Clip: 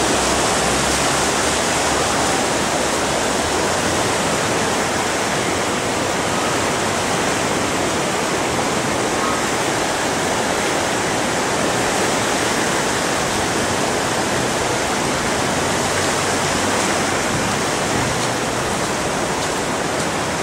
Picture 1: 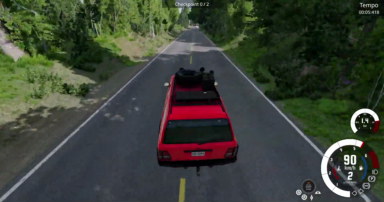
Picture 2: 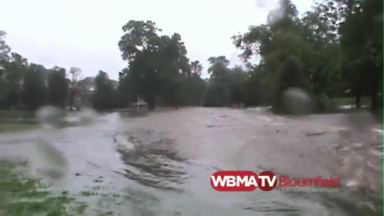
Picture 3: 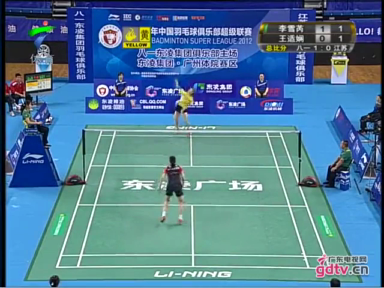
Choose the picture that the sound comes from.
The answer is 2